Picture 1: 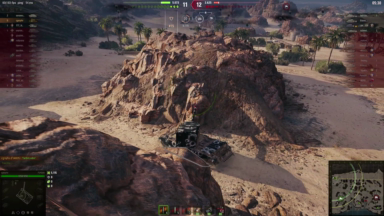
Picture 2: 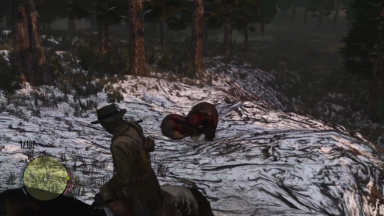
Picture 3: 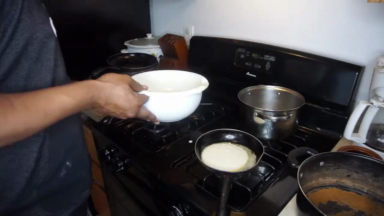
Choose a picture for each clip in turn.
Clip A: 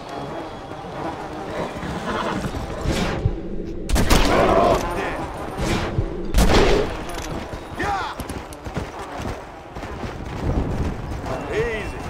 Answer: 2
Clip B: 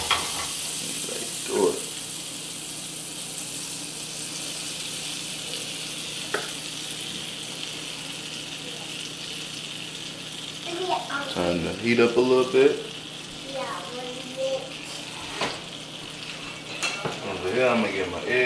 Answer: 3